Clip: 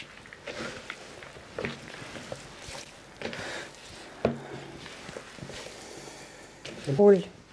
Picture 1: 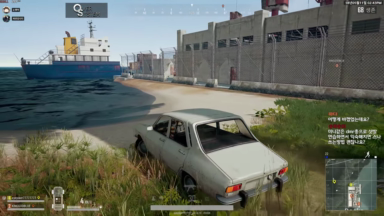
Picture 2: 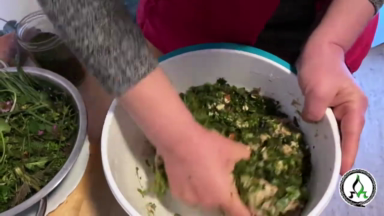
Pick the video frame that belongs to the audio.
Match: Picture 2